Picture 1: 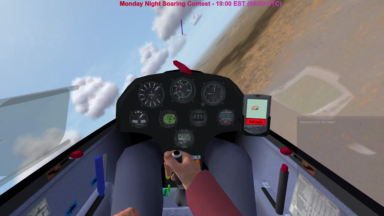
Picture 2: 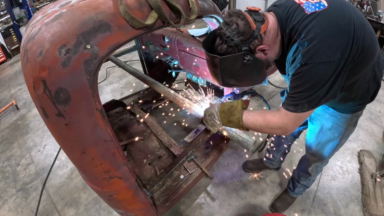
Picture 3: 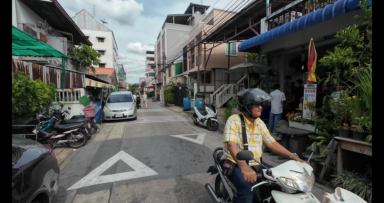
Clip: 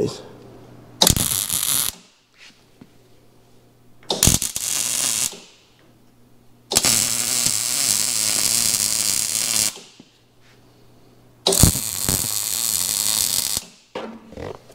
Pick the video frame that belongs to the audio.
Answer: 2